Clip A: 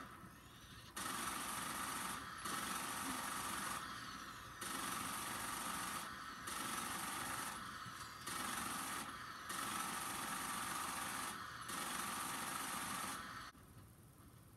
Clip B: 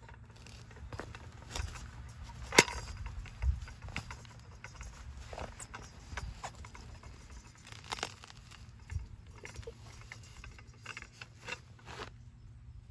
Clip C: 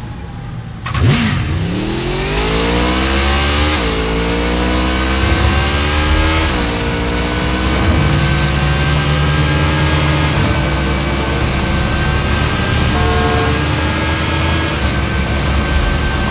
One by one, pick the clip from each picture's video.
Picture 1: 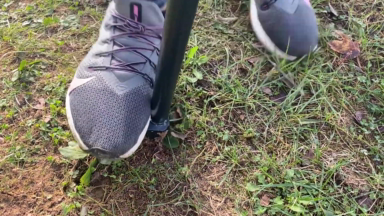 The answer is B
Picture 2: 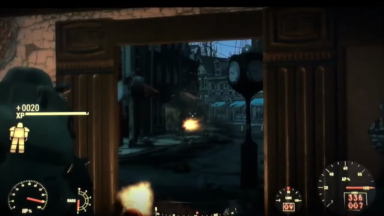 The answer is A